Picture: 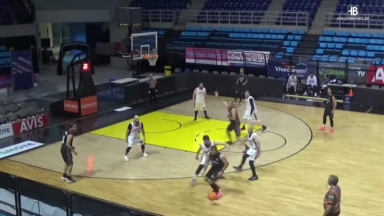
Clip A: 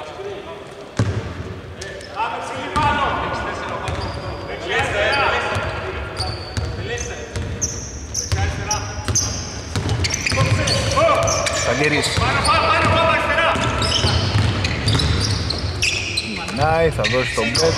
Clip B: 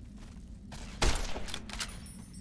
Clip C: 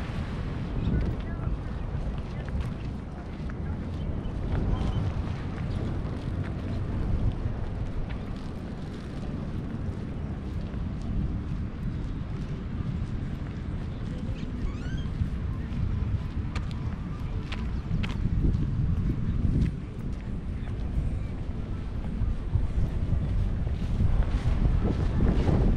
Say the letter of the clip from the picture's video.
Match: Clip A